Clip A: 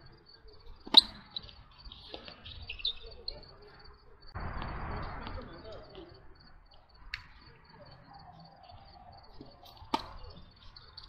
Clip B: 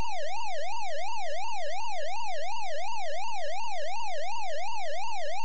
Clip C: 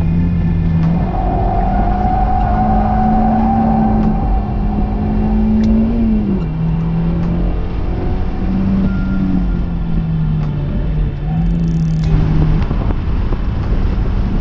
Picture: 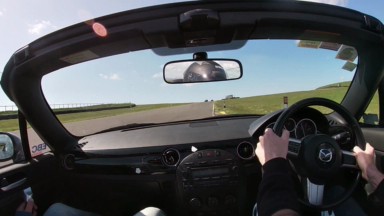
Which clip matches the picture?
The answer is C